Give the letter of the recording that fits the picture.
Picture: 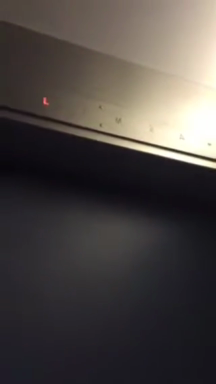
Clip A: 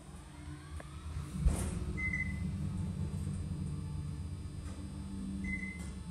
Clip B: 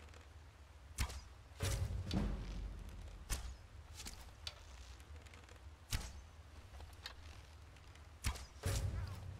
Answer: A